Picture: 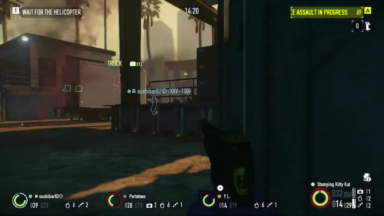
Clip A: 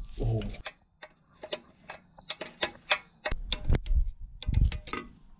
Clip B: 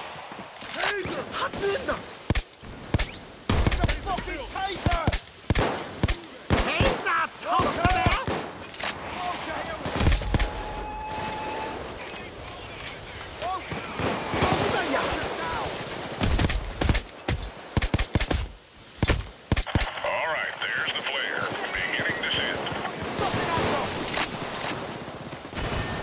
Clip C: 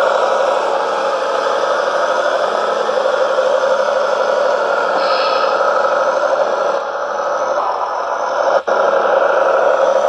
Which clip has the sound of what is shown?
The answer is B